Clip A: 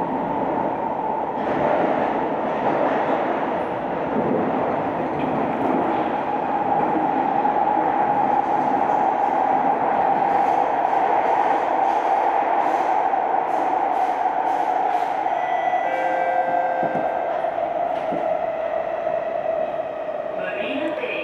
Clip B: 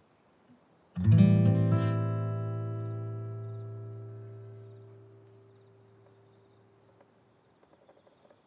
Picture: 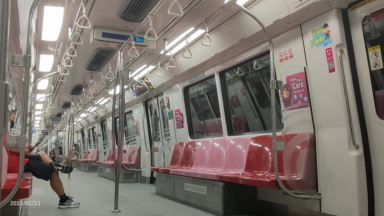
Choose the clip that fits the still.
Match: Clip A